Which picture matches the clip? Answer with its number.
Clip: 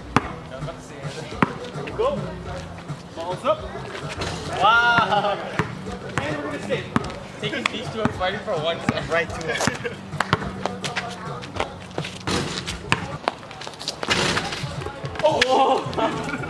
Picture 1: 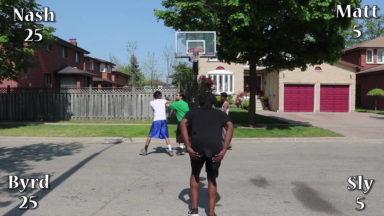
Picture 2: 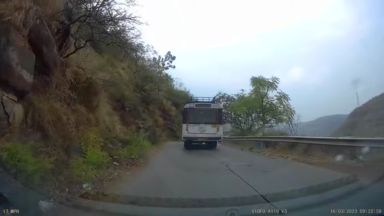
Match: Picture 1